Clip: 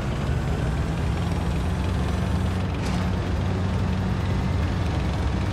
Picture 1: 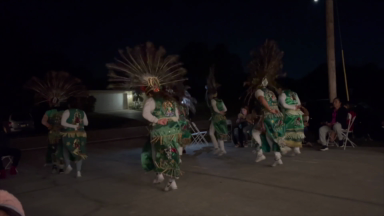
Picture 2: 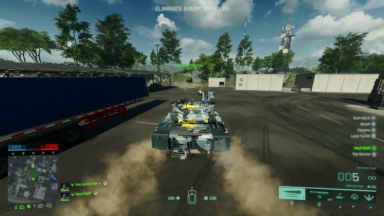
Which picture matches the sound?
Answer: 2